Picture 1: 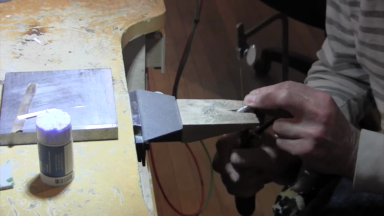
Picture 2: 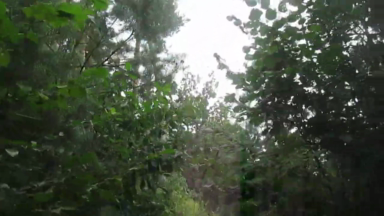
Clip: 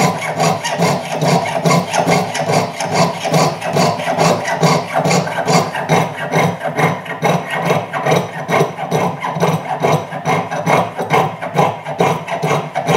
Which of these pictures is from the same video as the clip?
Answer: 1